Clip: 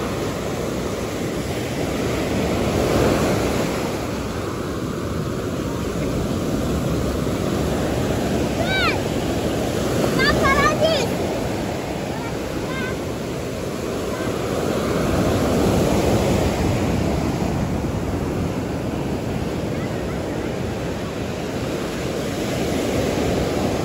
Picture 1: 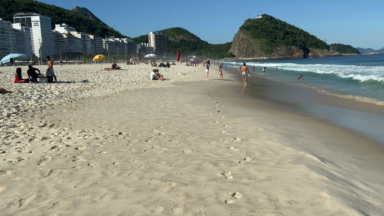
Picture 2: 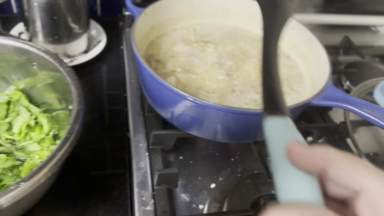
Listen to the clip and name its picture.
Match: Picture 1